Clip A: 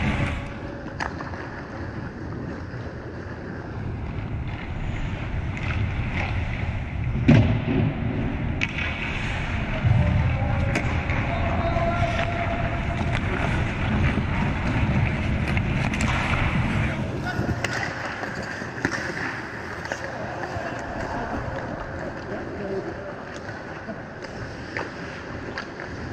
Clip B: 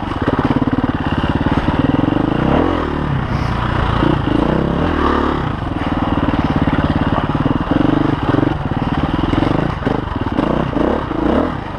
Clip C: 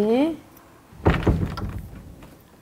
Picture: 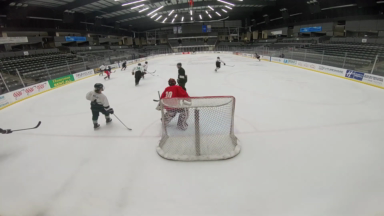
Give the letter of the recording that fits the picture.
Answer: A